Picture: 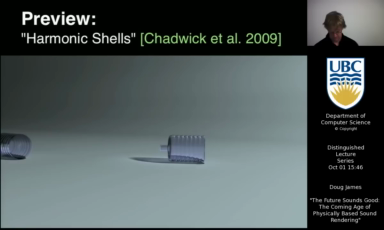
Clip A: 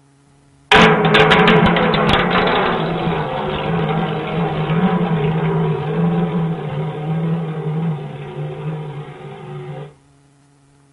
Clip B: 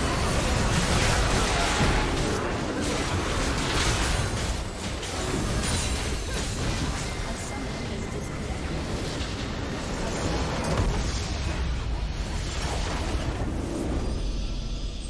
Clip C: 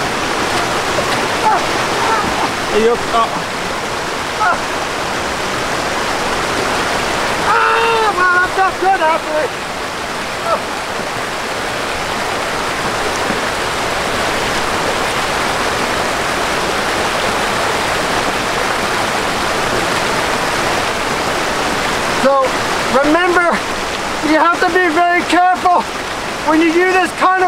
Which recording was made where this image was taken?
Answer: A